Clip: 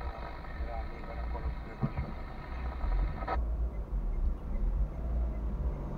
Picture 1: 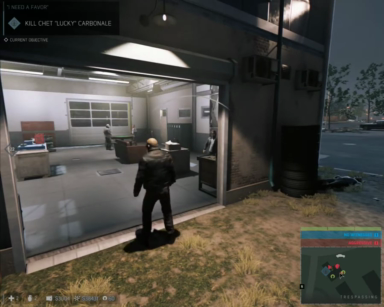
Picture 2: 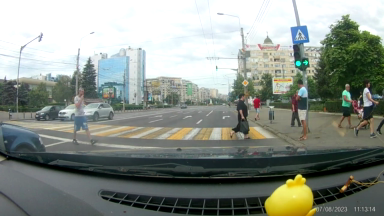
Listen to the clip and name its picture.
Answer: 2